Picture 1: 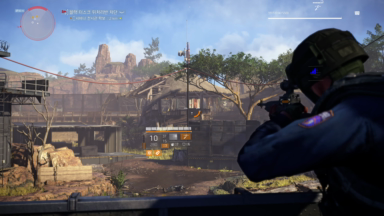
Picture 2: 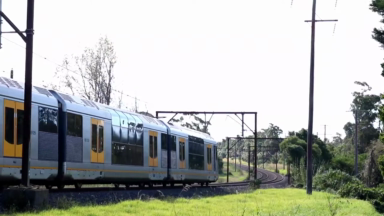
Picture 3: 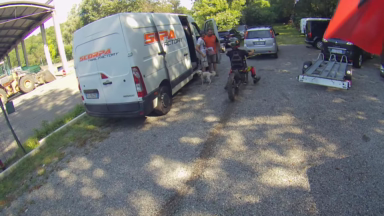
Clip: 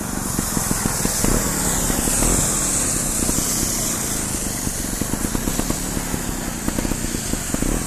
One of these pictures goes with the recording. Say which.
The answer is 3